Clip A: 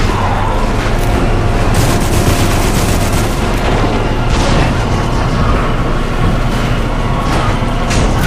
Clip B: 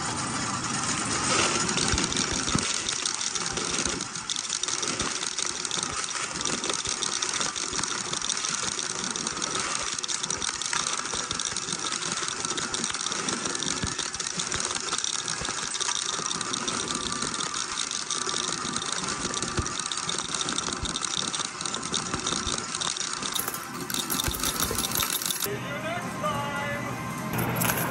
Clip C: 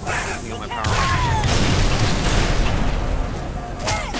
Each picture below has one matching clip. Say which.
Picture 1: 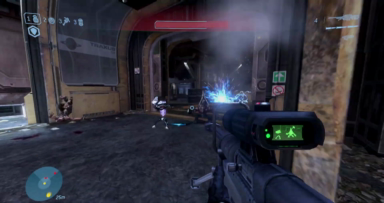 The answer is C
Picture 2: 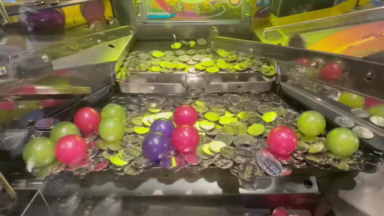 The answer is B